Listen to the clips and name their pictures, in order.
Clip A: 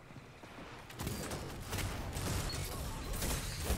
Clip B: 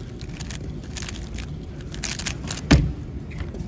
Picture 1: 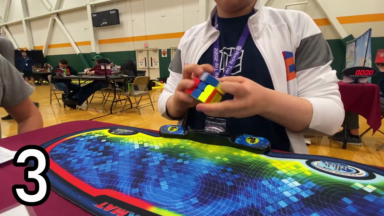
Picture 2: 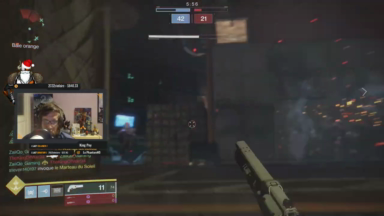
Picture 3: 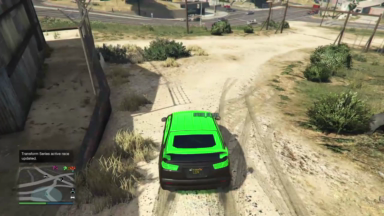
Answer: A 2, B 1